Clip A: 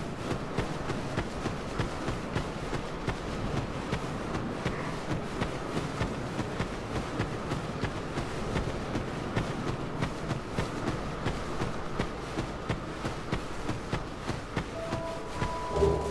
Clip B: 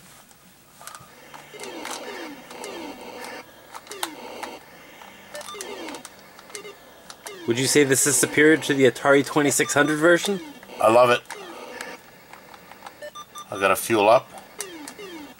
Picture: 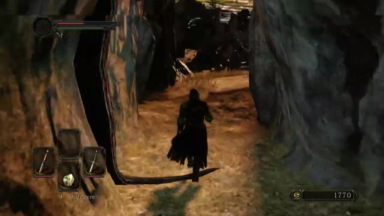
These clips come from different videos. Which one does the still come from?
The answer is A